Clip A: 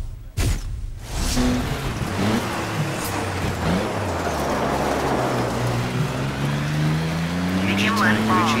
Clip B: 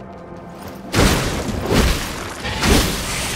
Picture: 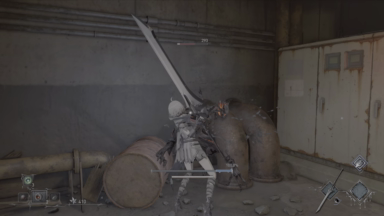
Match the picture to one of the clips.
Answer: B